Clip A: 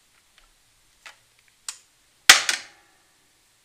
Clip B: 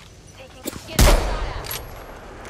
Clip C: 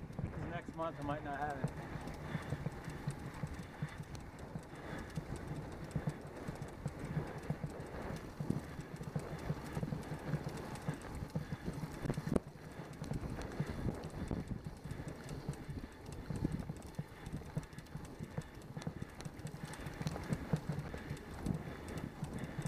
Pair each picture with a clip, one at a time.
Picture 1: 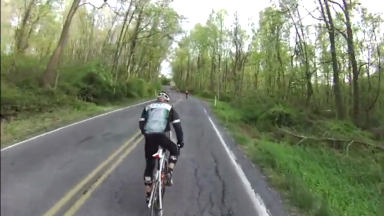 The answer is C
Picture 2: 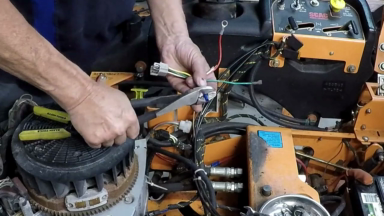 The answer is A